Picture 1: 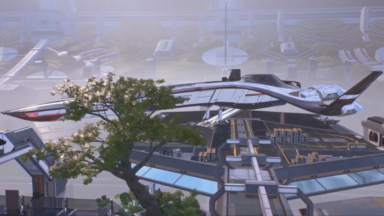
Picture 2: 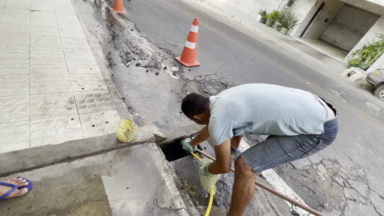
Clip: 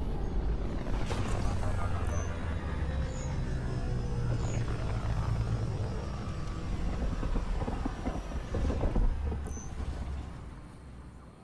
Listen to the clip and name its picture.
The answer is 1